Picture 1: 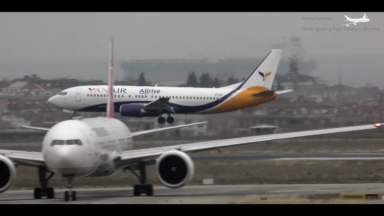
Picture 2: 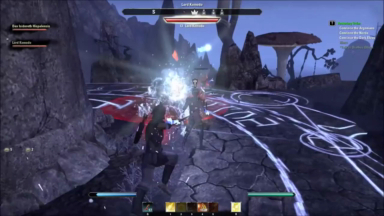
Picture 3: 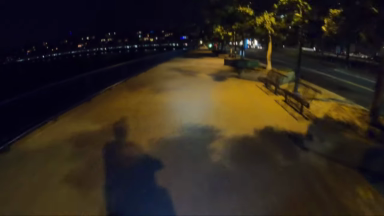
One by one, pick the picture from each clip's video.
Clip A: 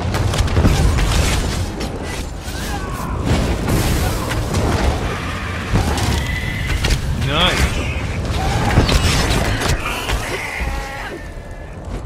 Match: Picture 2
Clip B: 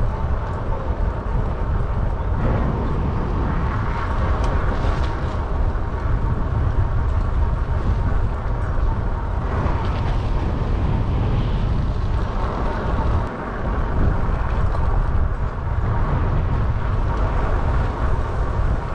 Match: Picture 3